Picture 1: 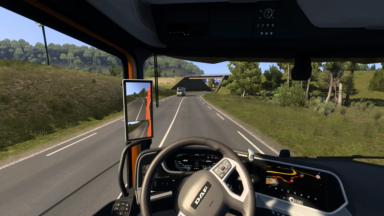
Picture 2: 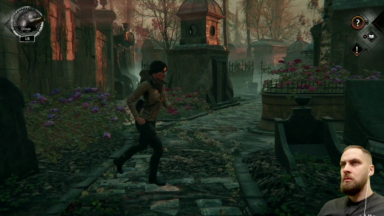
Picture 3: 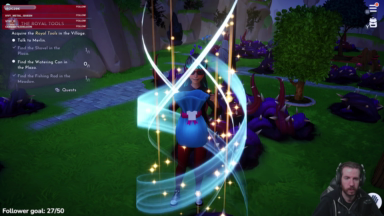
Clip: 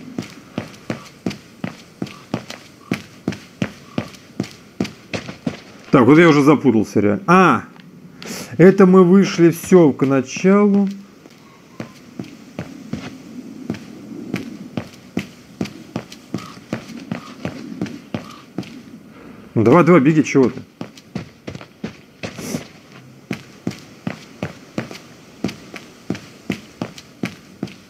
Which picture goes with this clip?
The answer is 2